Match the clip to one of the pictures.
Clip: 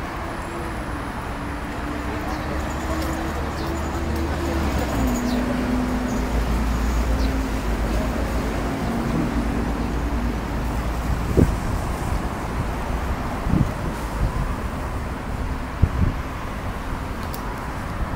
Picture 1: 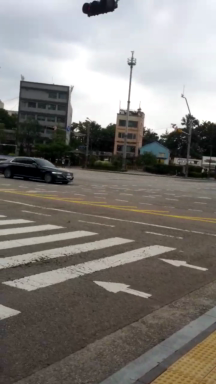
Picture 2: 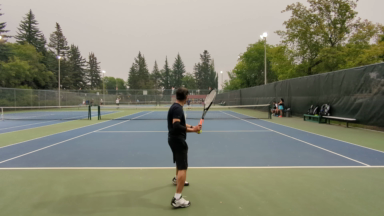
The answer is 1